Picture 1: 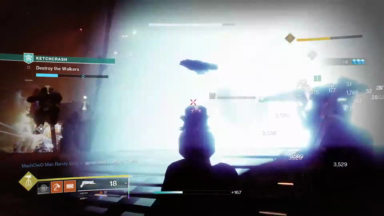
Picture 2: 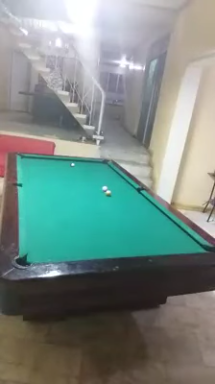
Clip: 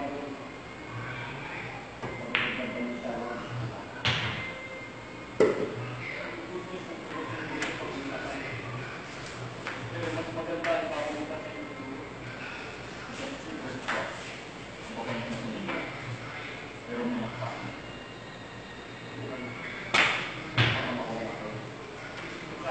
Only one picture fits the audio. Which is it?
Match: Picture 2